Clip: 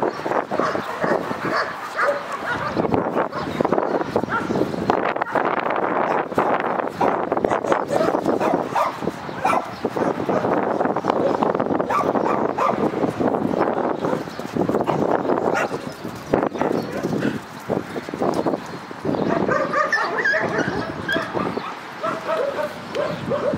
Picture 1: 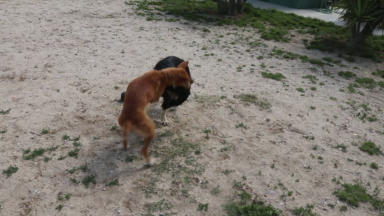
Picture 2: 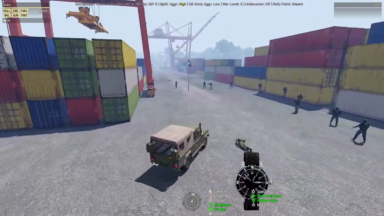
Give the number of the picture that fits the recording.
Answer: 1